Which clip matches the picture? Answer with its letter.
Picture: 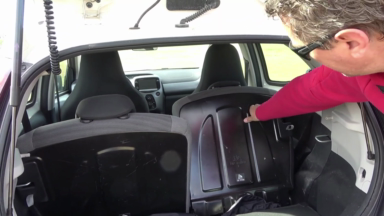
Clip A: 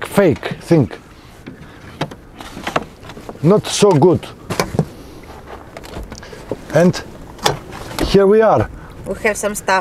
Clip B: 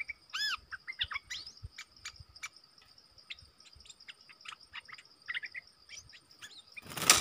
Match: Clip A